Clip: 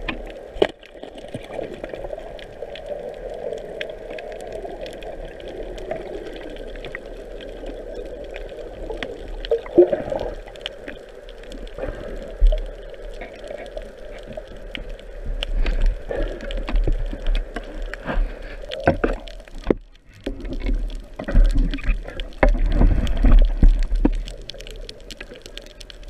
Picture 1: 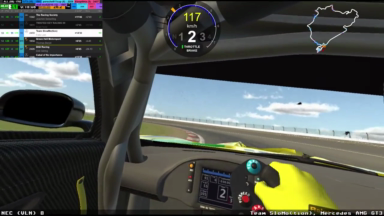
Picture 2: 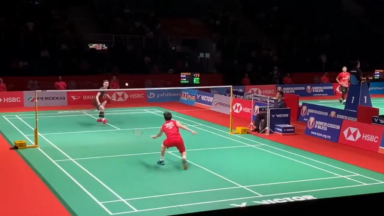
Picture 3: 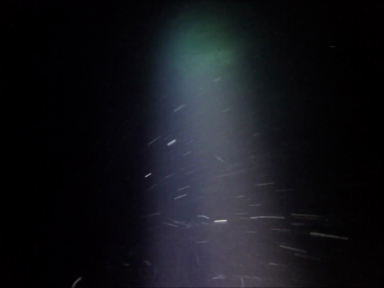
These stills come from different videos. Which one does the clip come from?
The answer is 3